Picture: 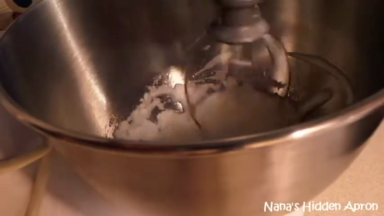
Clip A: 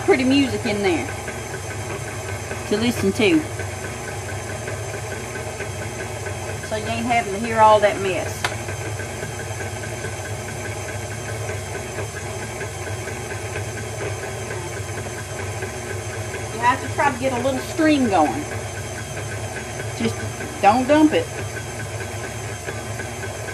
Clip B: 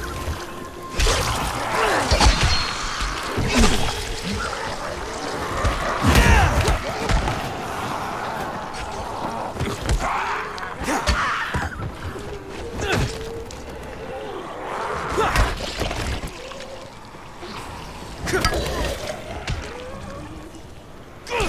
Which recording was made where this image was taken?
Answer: A